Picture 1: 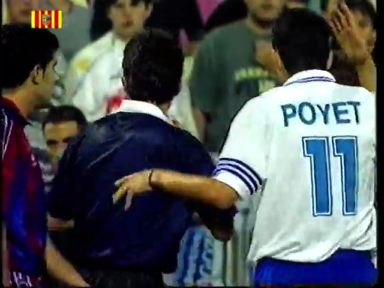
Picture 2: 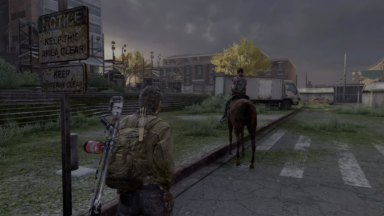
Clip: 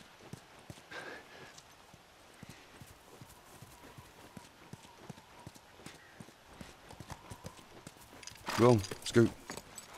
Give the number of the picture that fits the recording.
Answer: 2